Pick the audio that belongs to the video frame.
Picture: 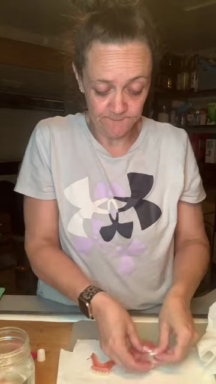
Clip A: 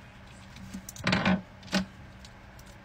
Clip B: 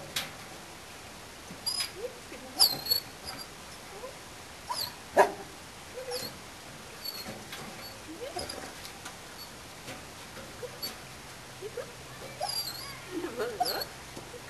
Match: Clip A